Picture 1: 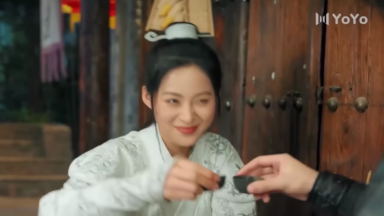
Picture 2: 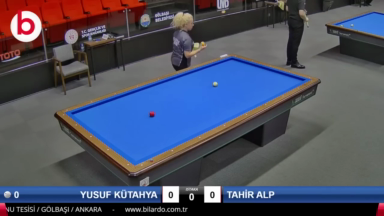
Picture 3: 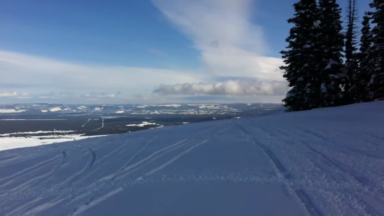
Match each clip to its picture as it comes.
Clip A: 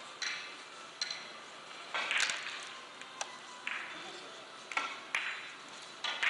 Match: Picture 2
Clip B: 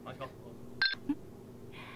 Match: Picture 1